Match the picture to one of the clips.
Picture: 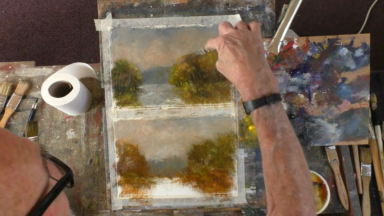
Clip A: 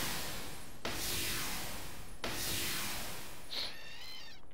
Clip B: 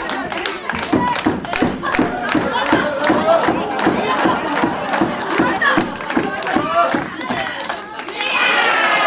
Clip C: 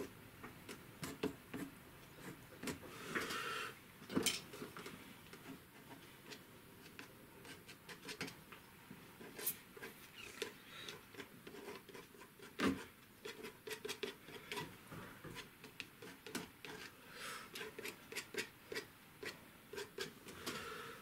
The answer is C